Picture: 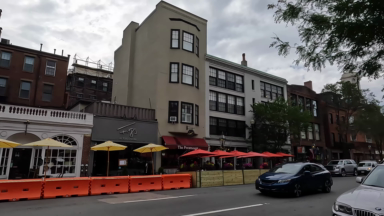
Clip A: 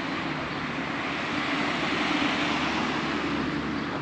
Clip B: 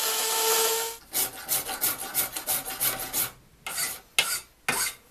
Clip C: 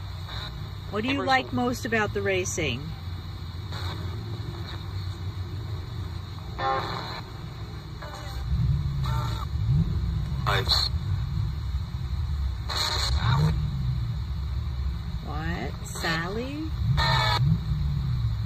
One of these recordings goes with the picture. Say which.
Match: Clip A